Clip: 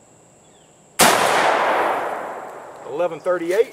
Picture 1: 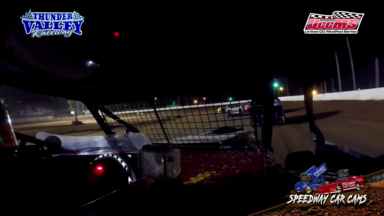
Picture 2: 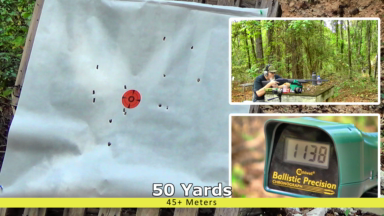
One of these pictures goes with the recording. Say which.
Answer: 2